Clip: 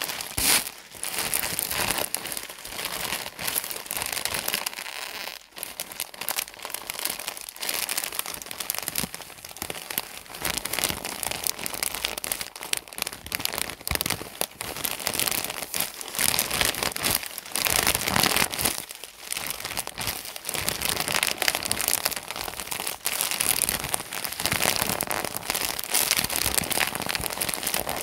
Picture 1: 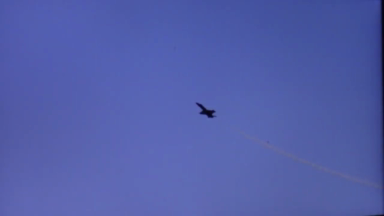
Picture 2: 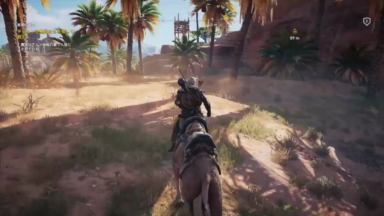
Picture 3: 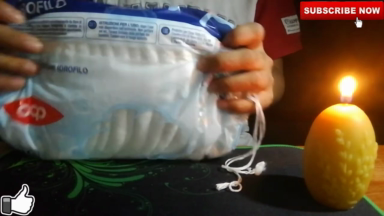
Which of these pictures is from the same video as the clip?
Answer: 3